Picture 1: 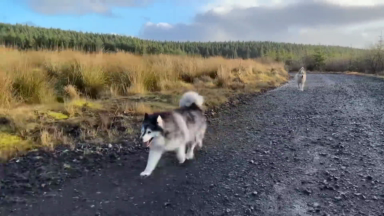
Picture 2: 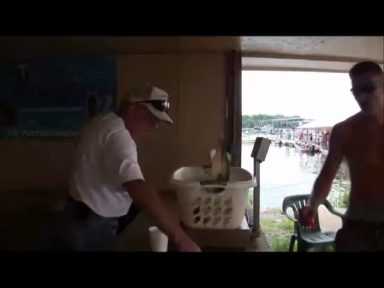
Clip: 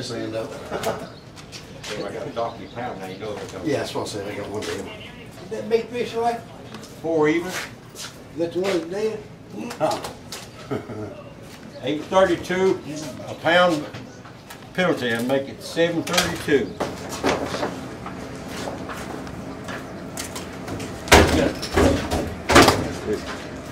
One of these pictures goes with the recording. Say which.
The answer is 2